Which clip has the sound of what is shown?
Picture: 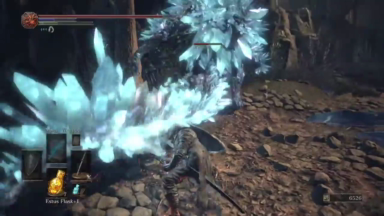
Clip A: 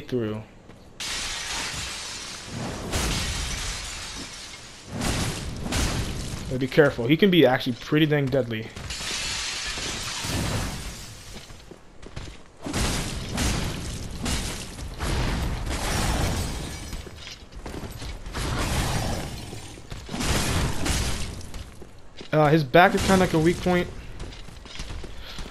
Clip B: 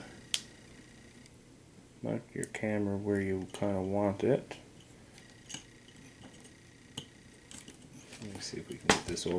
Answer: A